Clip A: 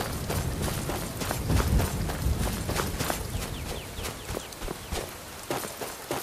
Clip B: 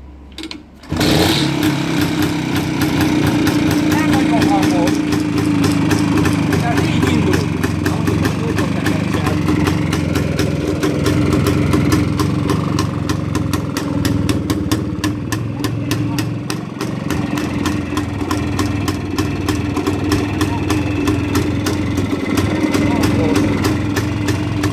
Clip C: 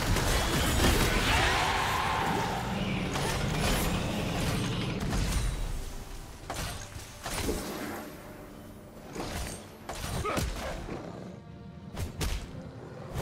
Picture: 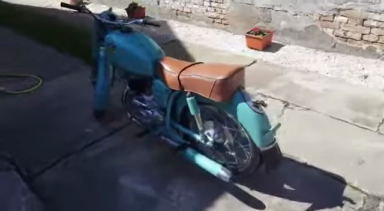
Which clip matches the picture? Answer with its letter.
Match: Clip B